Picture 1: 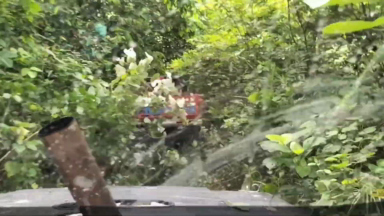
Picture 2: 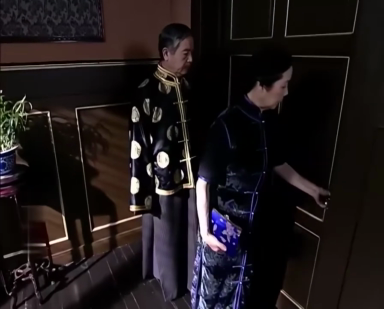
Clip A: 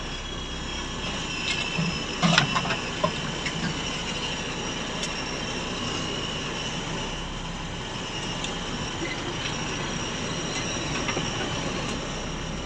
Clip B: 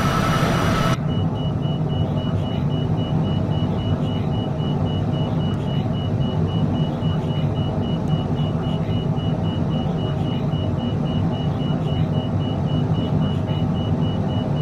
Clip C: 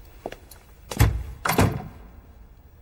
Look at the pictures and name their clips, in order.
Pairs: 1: A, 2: C